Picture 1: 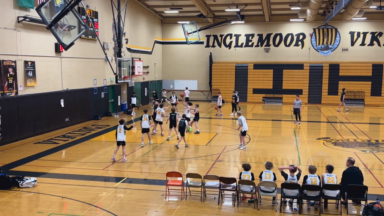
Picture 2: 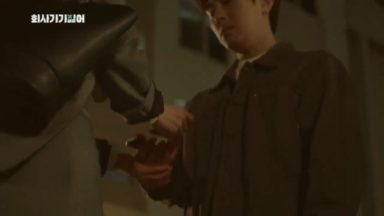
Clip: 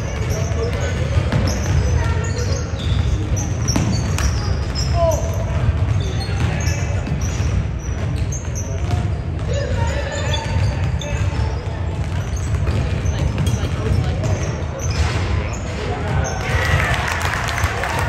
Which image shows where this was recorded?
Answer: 1